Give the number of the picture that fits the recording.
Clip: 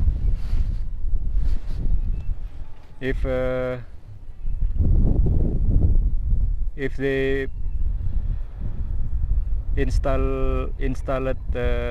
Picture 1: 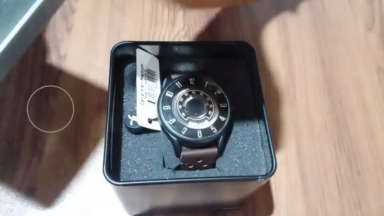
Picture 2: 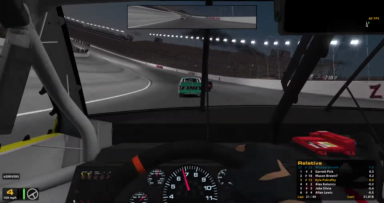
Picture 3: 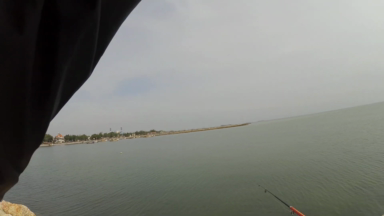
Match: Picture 3